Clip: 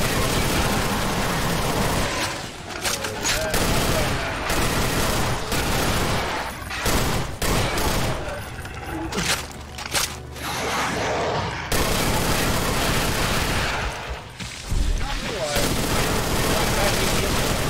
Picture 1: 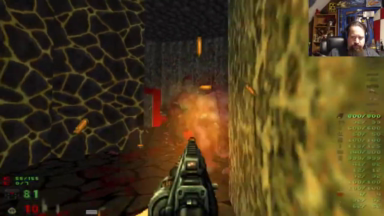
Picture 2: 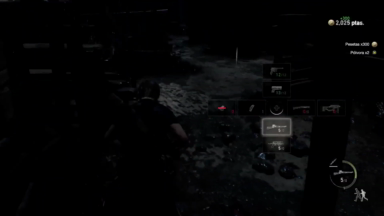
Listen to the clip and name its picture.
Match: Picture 1